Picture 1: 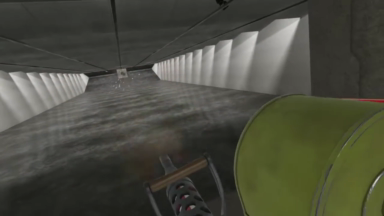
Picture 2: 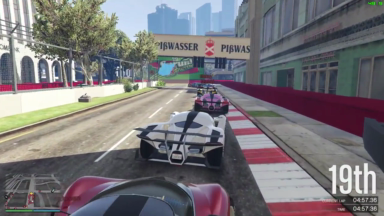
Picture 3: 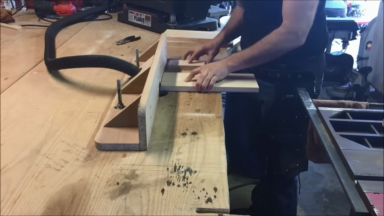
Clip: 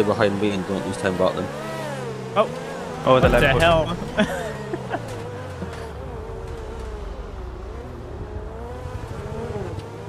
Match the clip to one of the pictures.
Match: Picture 2